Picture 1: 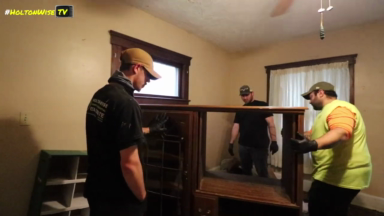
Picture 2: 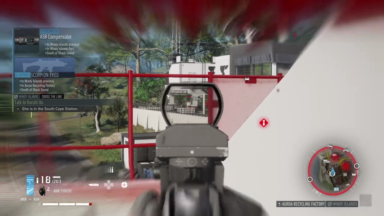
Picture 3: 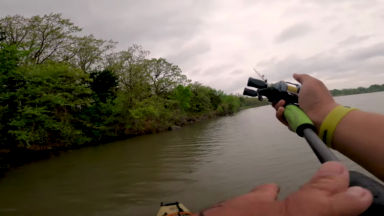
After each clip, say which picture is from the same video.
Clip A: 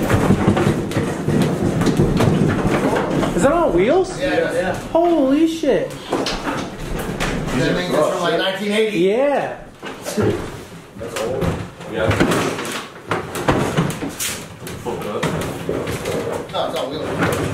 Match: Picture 1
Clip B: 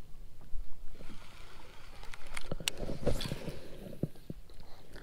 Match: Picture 3